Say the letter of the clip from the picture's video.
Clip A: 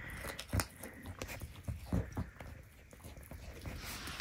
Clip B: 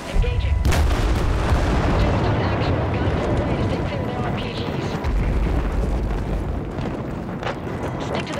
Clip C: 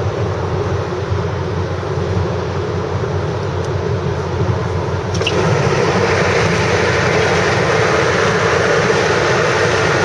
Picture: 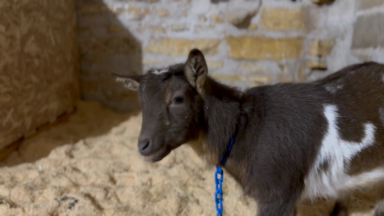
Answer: A